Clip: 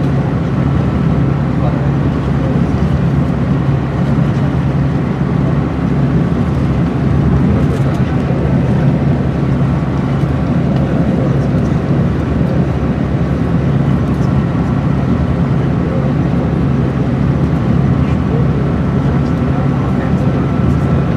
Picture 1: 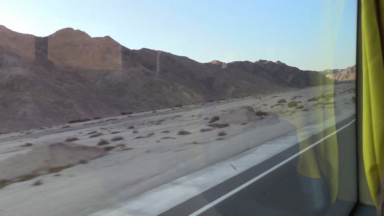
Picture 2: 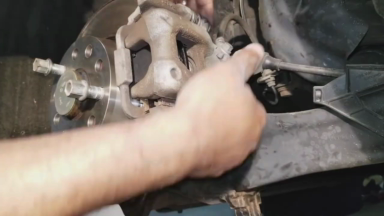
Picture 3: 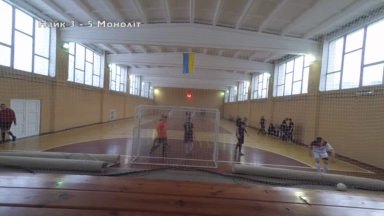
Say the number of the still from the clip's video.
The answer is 1